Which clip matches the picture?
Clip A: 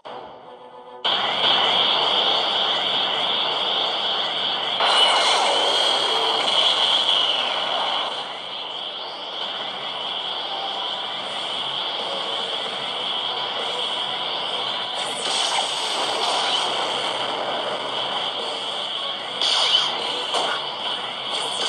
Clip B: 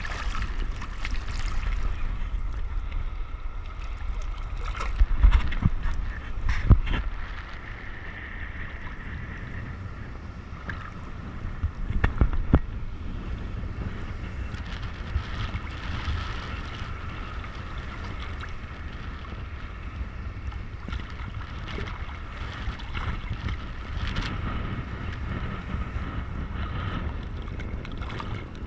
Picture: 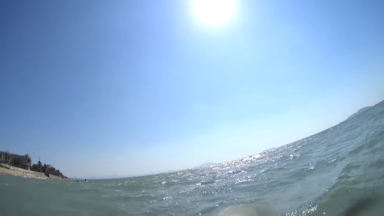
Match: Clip B